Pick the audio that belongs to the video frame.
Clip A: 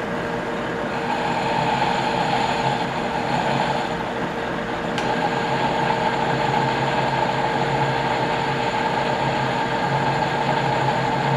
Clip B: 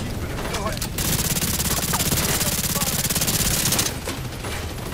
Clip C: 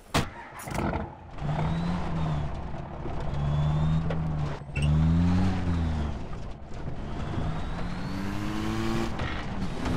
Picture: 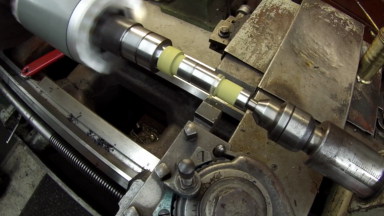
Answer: A